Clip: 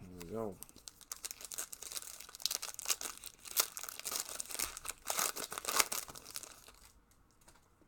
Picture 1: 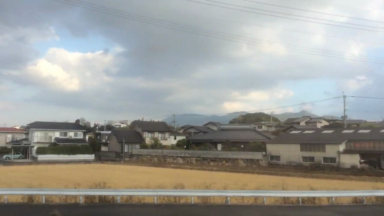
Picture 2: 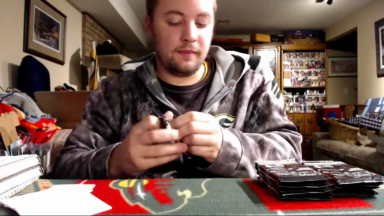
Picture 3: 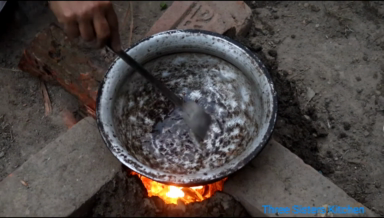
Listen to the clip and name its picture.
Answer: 2